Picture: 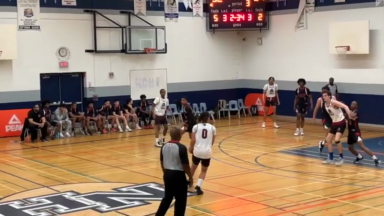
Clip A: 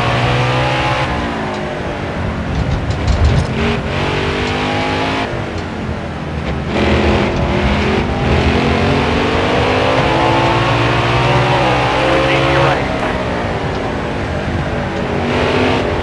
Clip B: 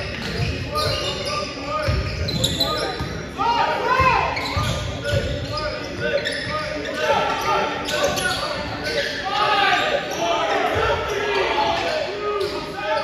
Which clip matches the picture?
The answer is B